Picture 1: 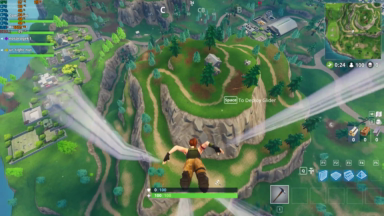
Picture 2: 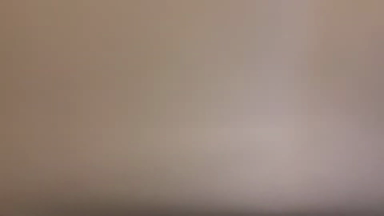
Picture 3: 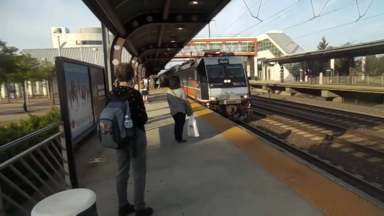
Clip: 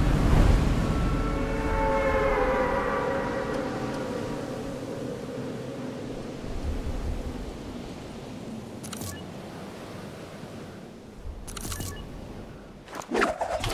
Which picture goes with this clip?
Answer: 1